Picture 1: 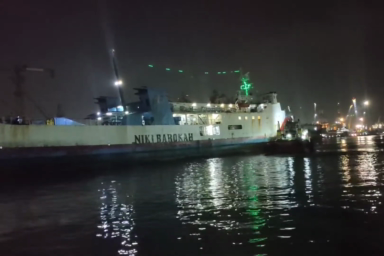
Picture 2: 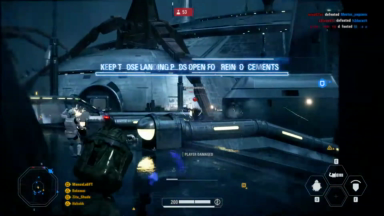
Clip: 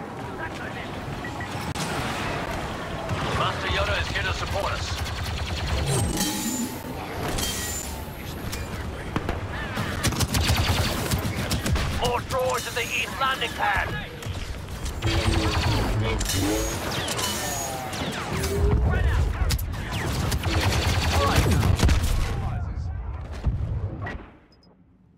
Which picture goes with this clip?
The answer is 2